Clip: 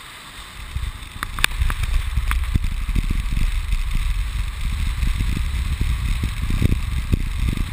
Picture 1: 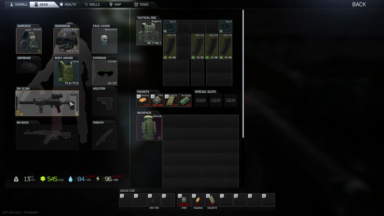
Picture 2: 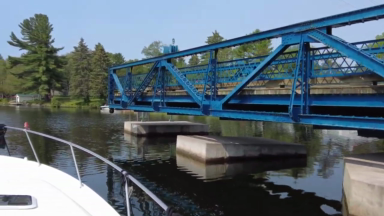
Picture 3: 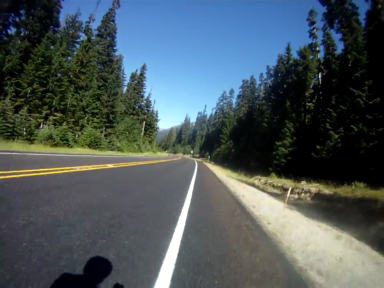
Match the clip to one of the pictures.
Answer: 3